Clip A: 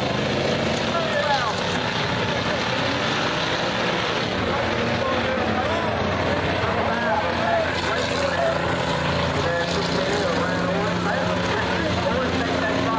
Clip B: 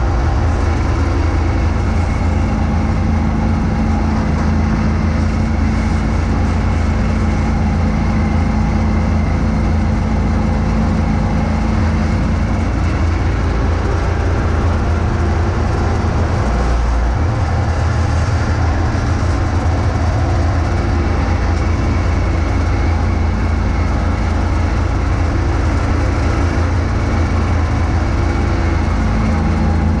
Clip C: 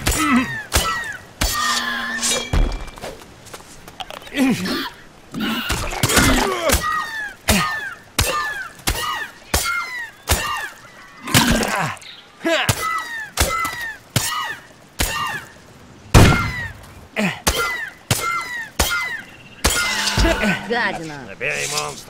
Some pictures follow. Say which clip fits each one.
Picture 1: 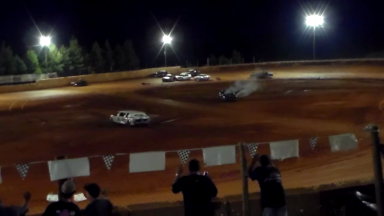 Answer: A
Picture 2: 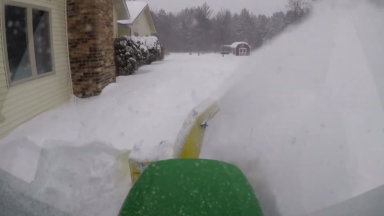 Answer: B